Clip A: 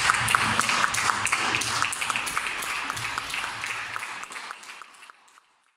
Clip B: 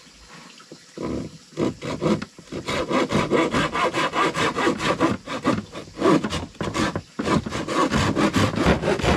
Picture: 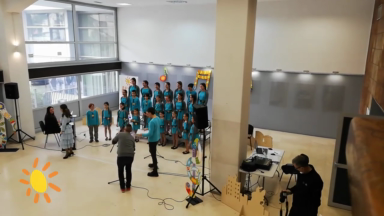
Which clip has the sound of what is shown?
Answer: A